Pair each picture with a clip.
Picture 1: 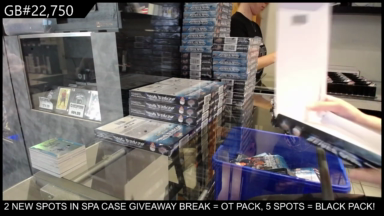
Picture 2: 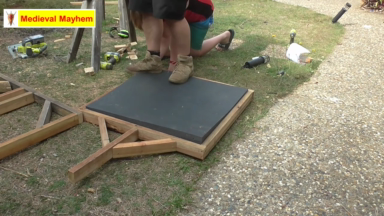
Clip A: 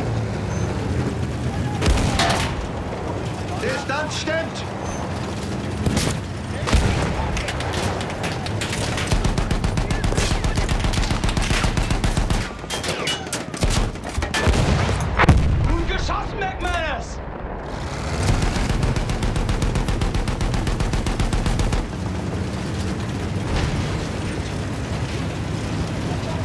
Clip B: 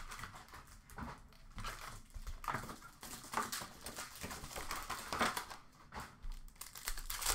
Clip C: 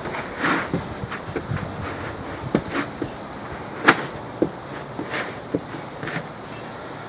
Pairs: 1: B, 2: C